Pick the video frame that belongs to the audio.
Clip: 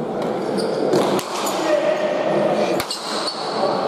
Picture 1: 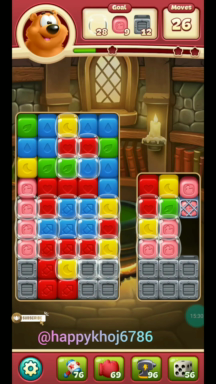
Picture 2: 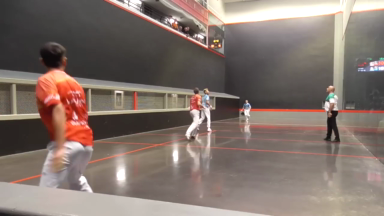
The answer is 2